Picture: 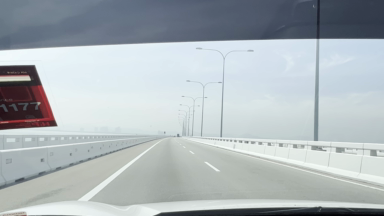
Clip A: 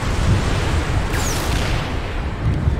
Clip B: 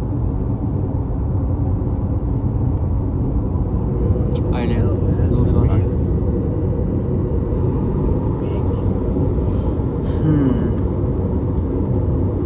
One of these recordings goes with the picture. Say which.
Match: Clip B